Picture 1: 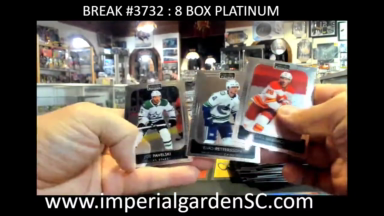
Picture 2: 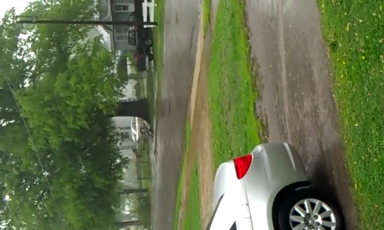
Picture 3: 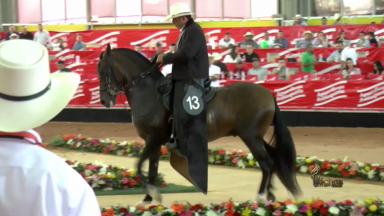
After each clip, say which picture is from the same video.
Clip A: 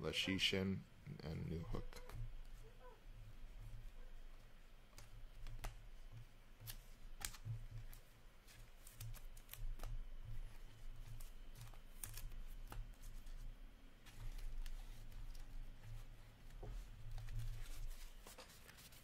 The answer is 1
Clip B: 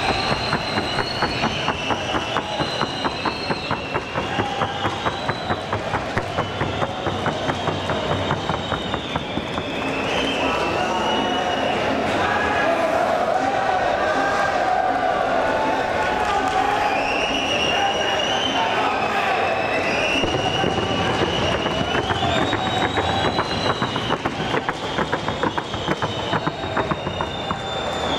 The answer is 3